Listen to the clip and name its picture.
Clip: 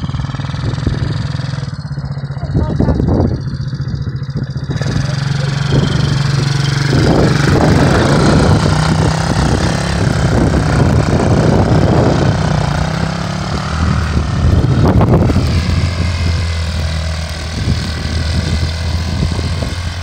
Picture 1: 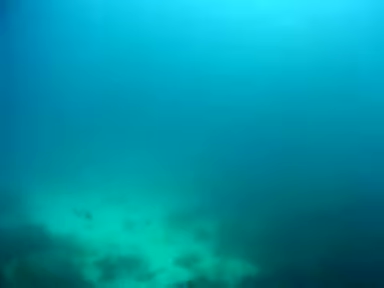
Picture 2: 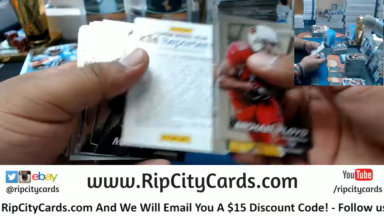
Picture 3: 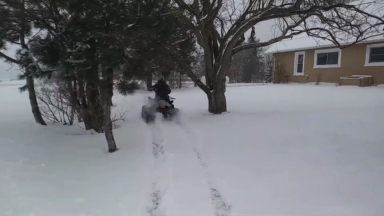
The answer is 3